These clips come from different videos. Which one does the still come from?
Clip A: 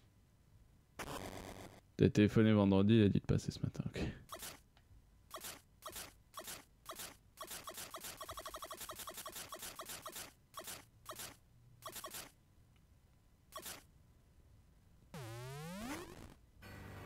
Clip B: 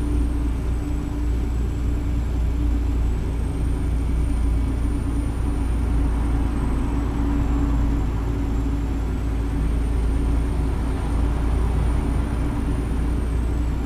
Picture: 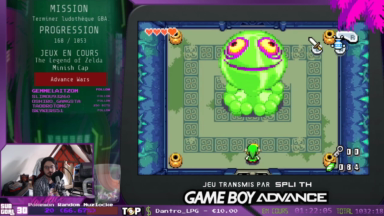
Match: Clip A